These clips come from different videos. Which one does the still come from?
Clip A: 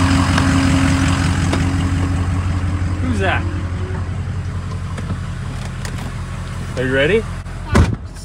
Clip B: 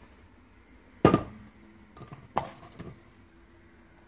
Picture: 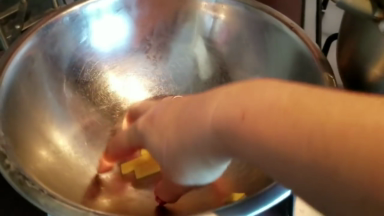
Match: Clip B